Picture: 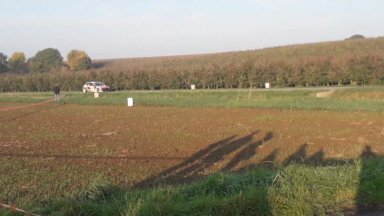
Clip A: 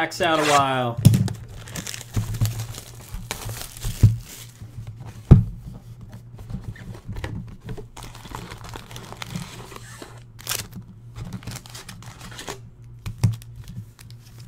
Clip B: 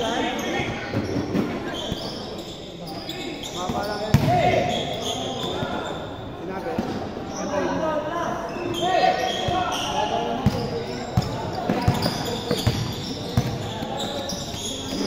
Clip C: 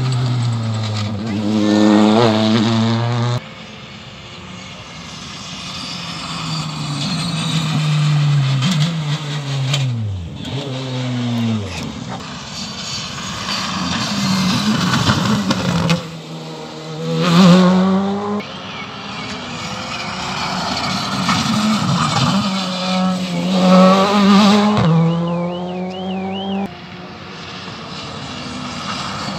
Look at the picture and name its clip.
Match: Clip C